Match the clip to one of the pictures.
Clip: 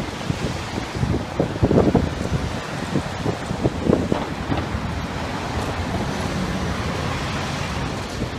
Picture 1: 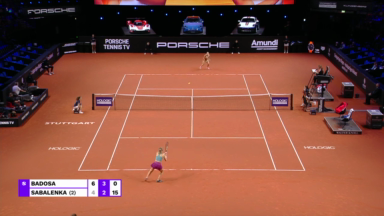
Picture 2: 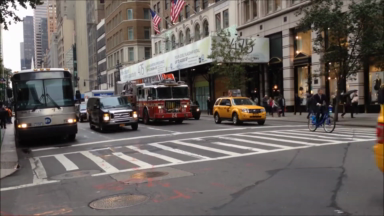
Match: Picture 2